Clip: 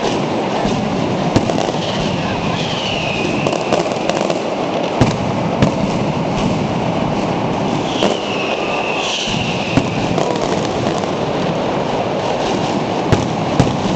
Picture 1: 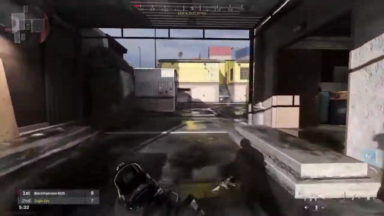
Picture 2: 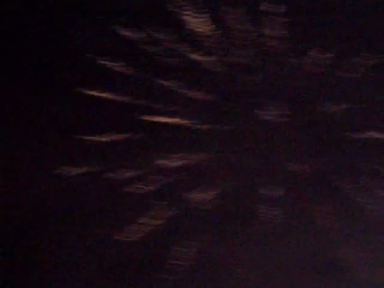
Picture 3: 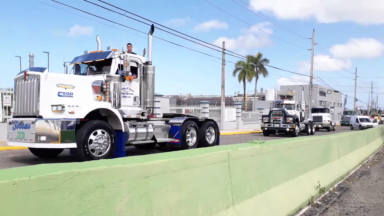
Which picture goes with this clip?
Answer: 2